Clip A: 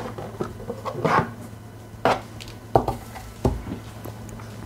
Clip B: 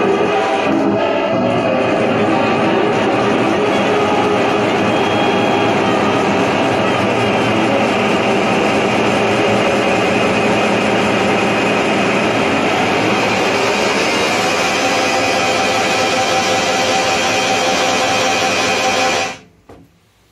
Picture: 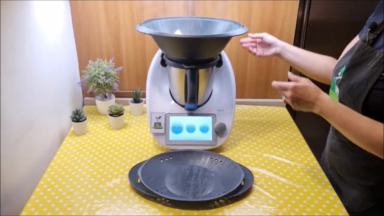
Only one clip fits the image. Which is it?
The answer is A